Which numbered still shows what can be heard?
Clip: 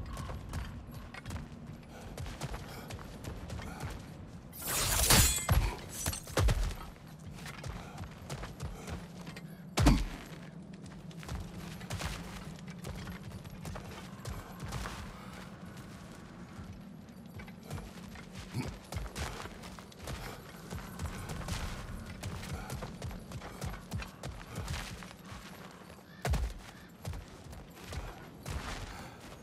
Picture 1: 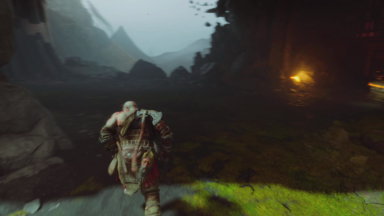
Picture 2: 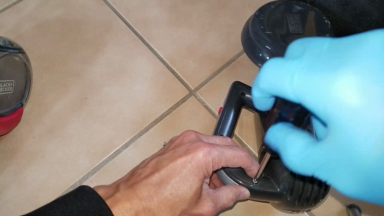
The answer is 1